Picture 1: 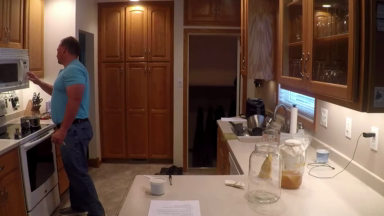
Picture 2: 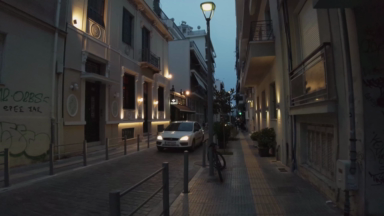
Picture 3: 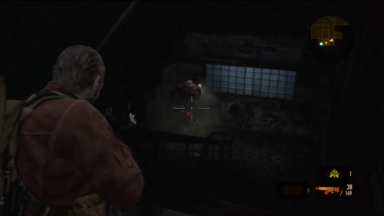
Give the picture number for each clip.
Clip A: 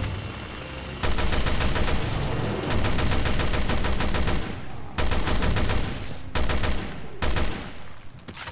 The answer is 3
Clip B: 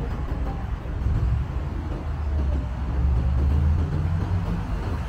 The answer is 2